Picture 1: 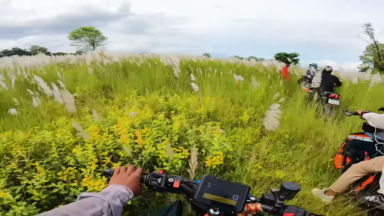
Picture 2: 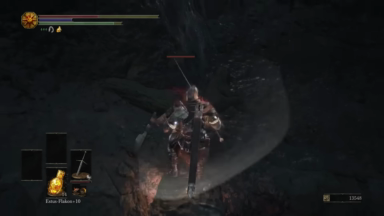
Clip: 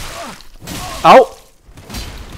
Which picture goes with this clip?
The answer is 2